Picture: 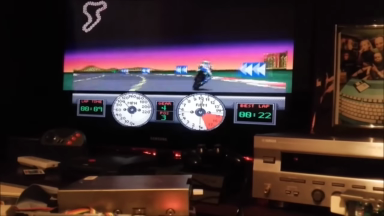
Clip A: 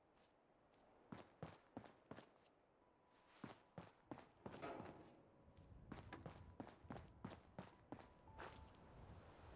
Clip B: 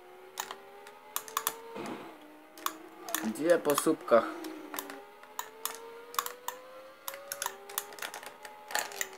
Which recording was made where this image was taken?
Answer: B